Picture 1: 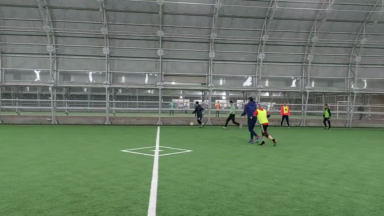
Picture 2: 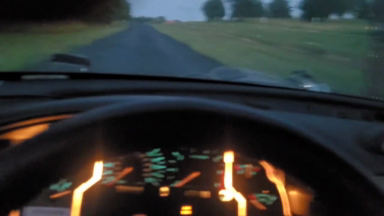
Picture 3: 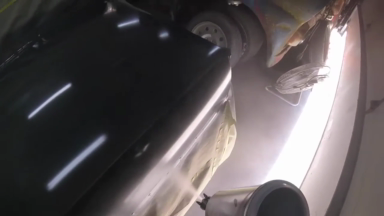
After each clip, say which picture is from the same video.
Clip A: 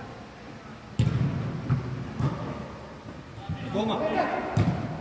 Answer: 1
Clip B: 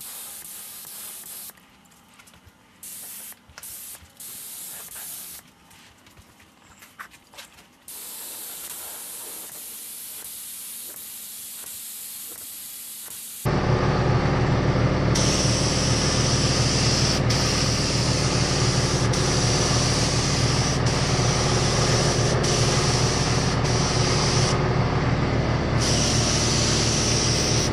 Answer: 3